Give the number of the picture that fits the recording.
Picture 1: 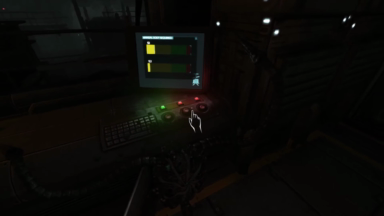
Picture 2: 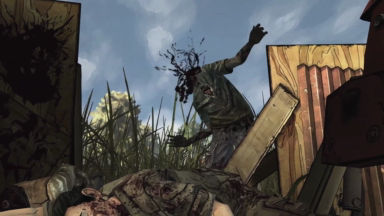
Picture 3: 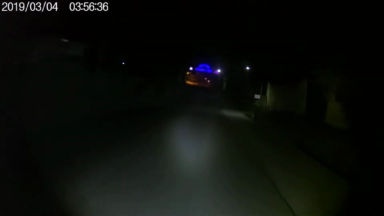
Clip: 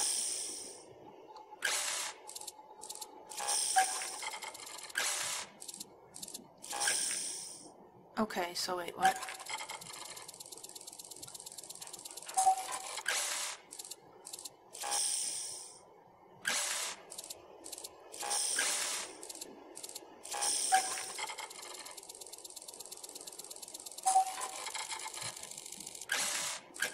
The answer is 1